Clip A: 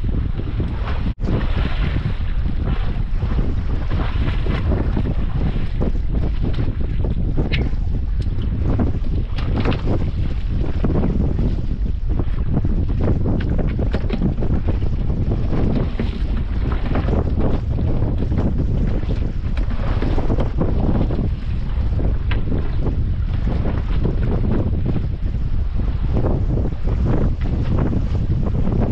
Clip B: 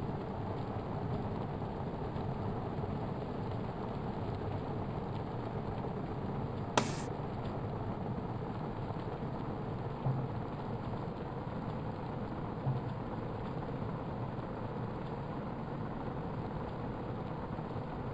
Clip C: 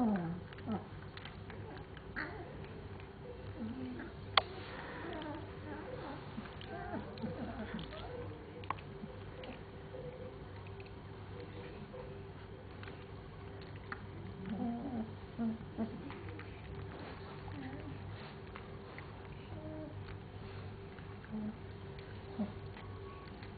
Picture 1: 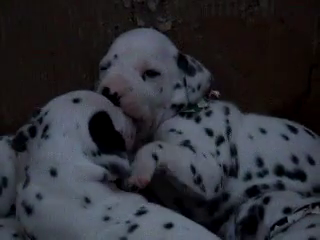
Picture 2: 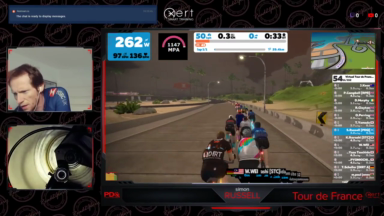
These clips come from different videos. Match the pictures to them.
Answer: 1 C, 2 B